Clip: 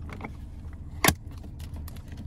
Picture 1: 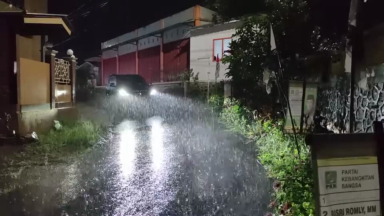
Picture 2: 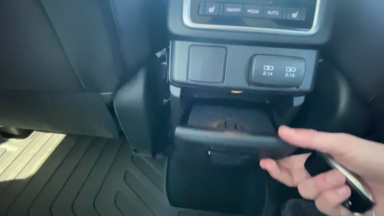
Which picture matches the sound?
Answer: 2